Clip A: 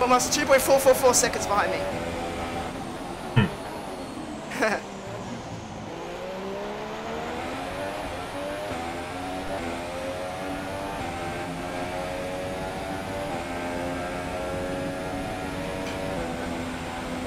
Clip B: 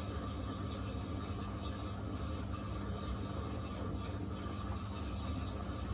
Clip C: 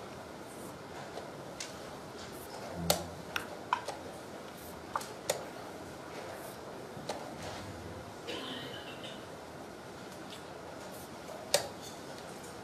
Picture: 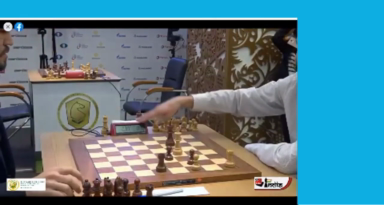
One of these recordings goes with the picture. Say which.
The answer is C